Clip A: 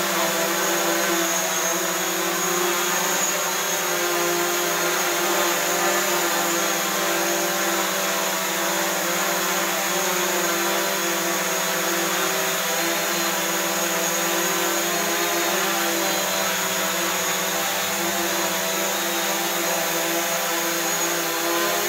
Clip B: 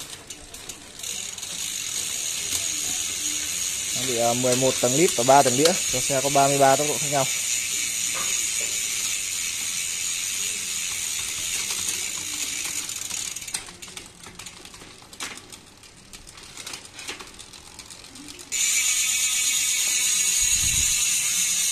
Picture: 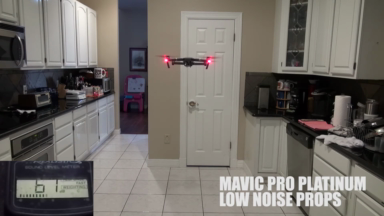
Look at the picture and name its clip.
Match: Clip A